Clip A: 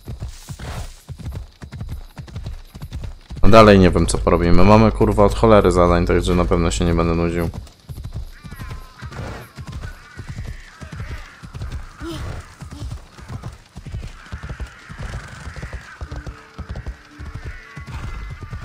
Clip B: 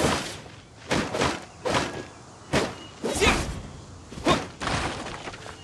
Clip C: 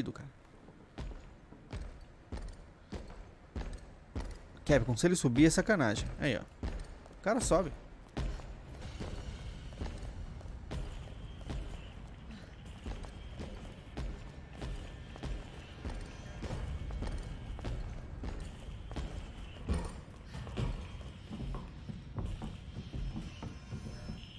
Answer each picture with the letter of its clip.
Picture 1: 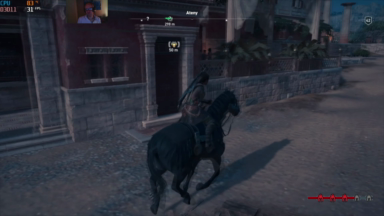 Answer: A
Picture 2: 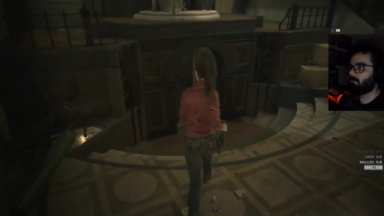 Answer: C